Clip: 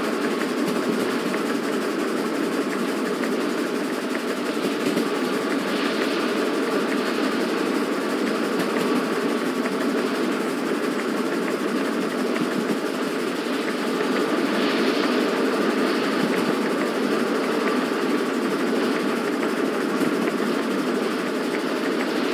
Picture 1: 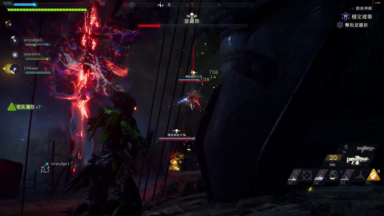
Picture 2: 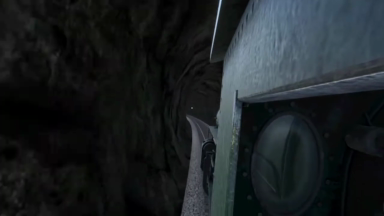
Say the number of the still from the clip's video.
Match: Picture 2